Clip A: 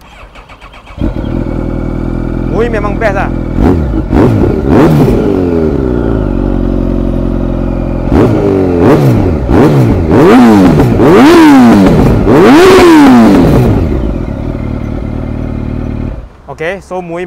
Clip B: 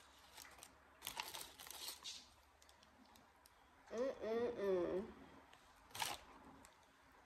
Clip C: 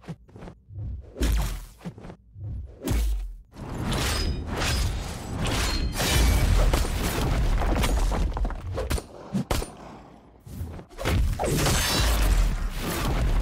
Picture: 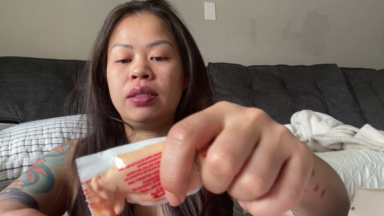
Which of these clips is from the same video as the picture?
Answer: B